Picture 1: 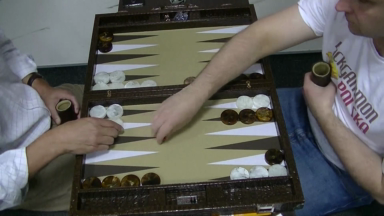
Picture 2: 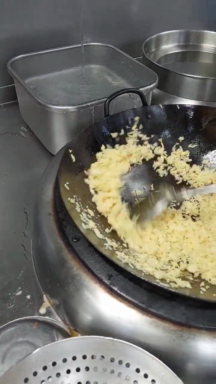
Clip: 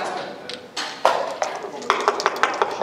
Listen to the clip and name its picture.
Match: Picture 1